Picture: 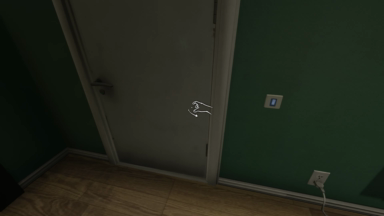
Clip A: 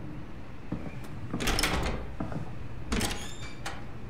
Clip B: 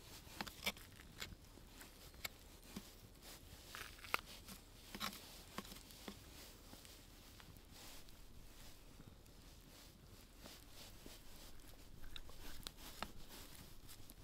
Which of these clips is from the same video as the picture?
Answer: A